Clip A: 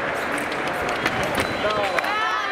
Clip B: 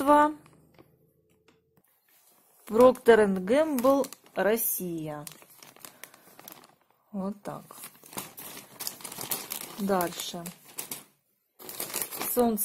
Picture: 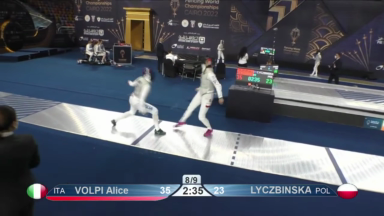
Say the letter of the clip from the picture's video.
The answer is A